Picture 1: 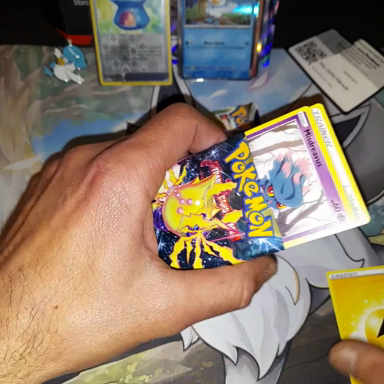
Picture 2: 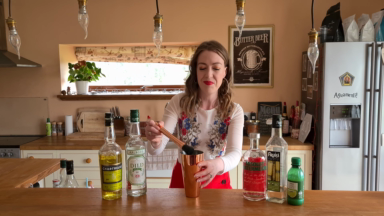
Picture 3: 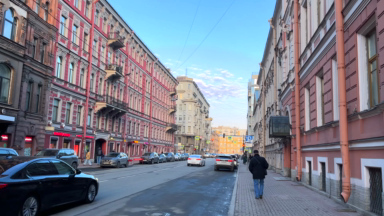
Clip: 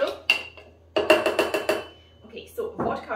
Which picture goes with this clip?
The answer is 2